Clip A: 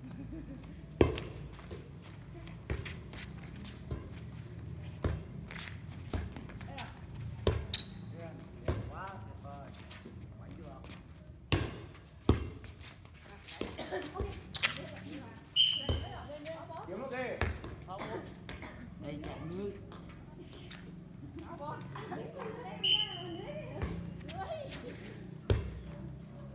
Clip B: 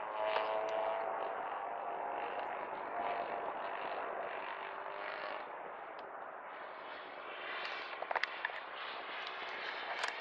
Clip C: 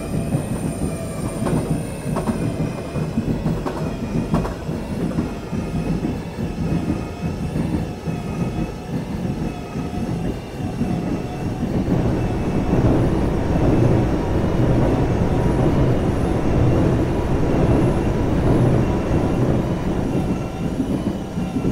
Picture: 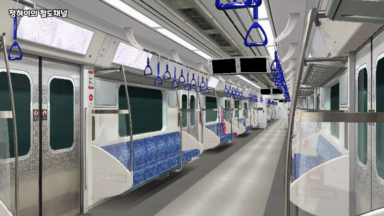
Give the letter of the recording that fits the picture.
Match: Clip C